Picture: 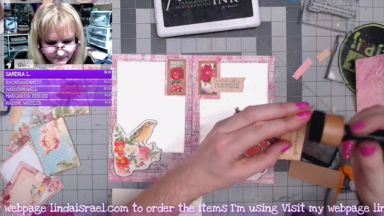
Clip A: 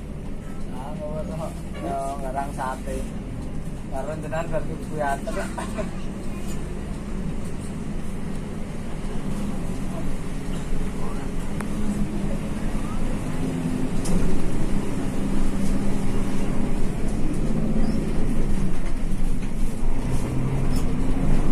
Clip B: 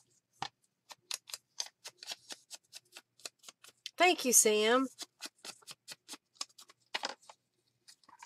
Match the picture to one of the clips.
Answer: B